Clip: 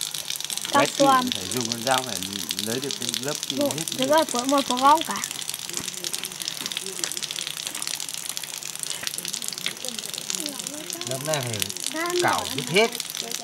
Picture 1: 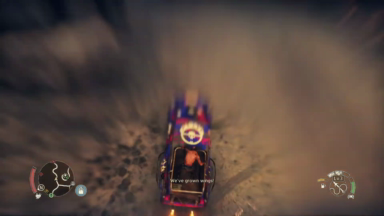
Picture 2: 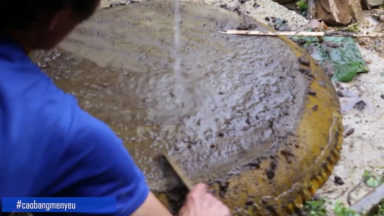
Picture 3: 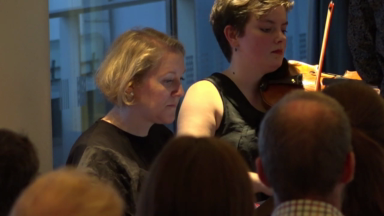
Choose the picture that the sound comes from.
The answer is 2